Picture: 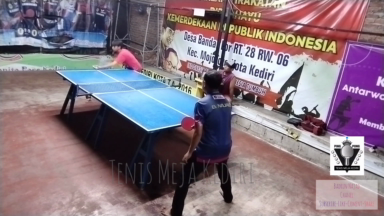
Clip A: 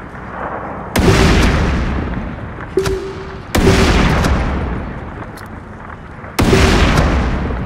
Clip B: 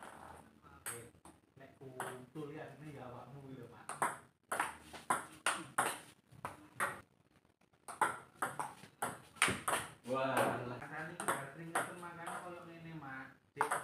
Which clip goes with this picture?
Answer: B